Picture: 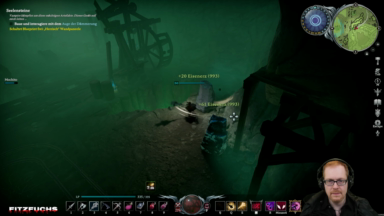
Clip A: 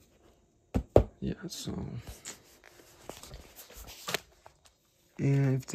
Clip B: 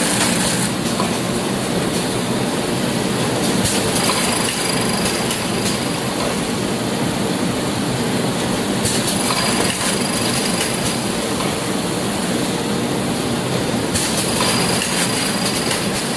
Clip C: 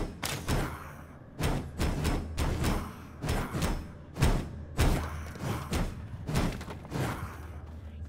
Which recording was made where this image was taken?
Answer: C